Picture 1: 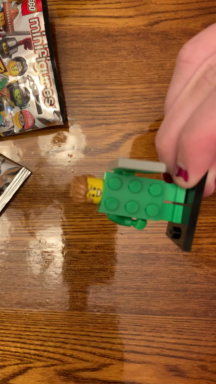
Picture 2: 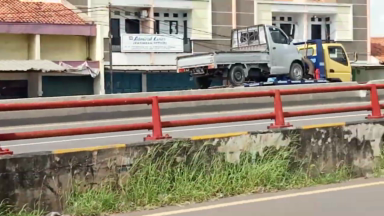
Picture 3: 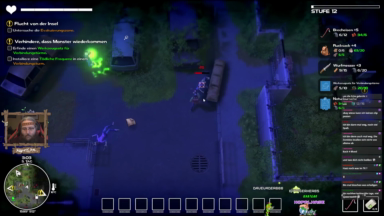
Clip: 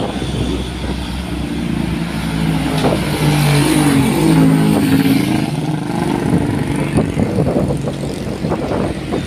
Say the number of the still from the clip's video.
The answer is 2